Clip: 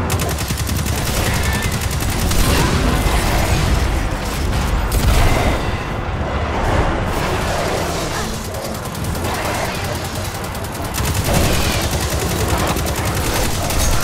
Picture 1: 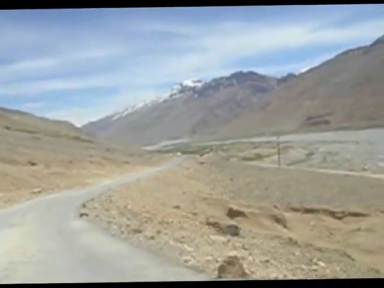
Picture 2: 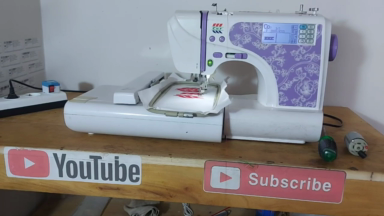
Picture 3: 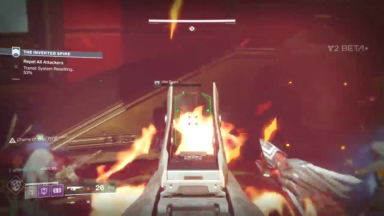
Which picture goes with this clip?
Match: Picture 3